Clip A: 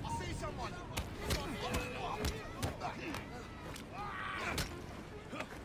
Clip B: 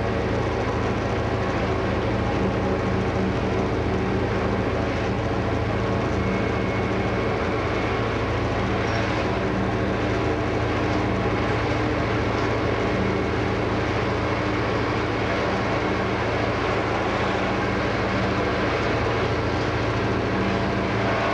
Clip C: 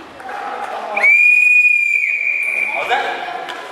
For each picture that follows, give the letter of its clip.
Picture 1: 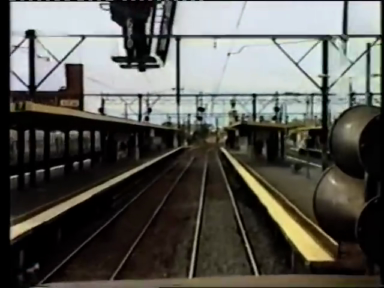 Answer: B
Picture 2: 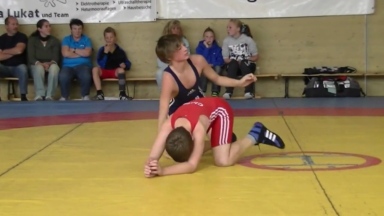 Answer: C